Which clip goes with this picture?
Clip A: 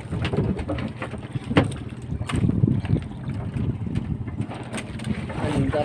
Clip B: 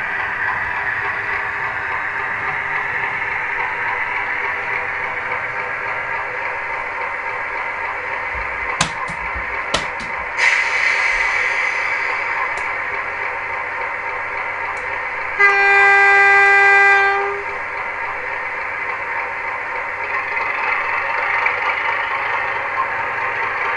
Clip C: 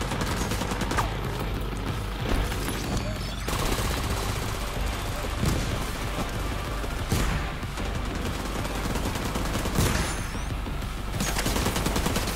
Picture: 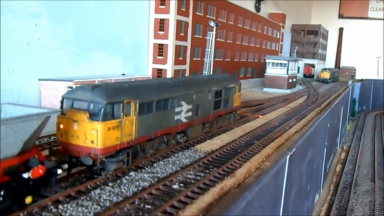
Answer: B